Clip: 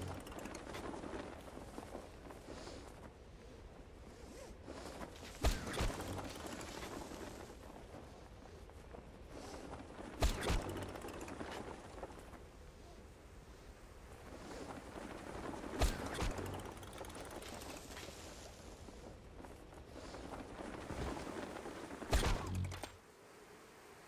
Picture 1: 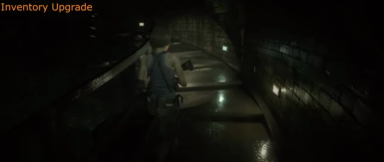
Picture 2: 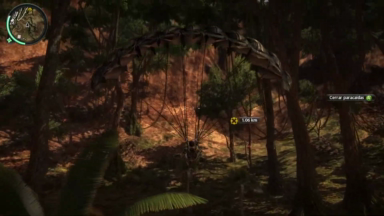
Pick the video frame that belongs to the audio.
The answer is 2